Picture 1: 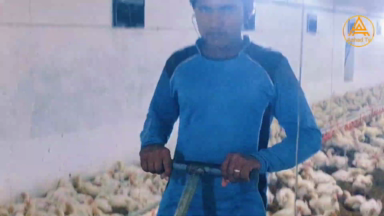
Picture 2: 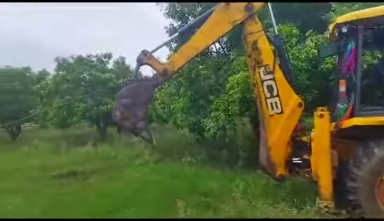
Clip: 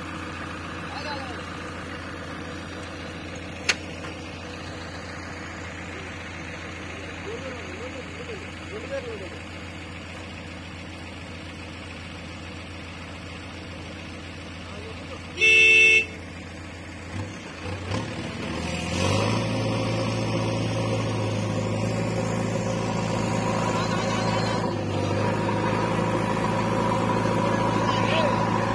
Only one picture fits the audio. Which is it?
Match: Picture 2